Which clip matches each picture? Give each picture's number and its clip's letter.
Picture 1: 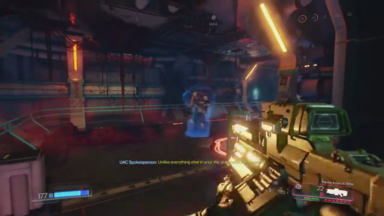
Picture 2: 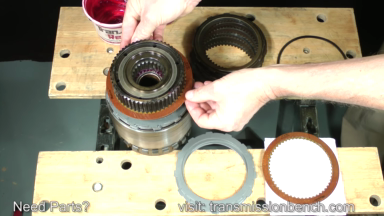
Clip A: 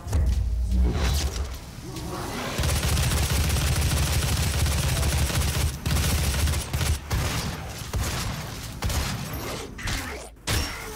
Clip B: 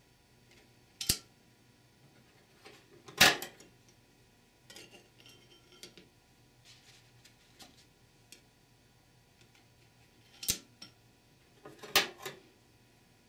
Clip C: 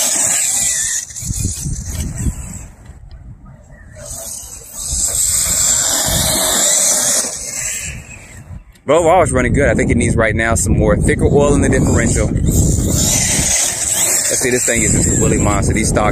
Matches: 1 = A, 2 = B